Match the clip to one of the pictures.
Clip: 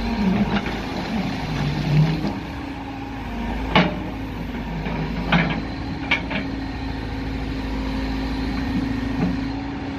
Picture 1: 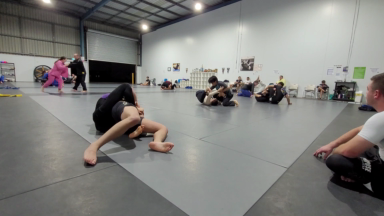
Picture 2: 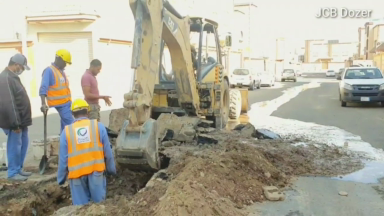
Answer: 2